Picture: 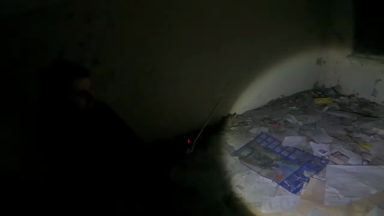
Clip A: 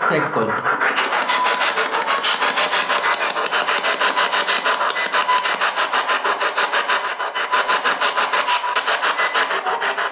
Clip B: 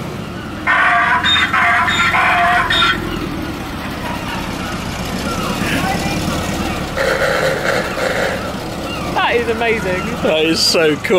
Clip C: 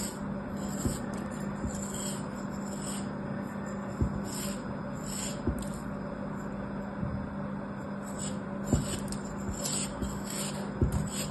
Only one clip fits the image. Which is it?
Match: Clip A